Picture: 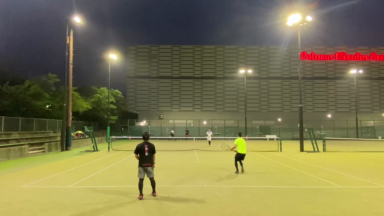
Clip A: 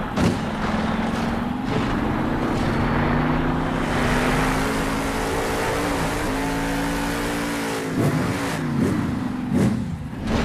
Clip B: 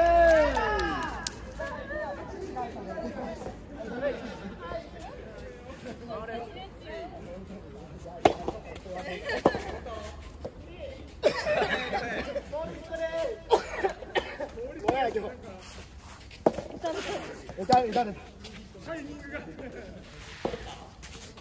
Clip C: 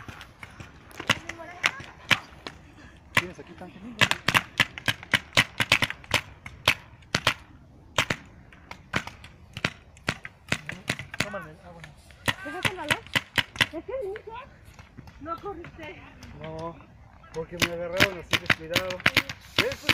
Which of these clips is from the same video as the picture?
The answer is B